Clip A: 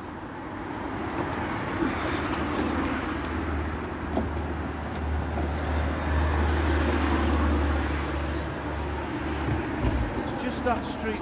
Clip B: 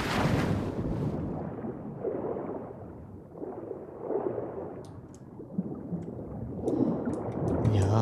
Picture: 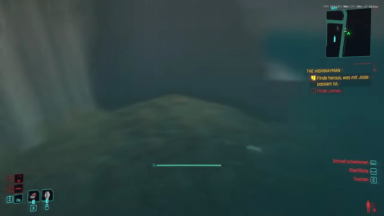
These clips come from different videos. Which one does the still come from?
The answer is B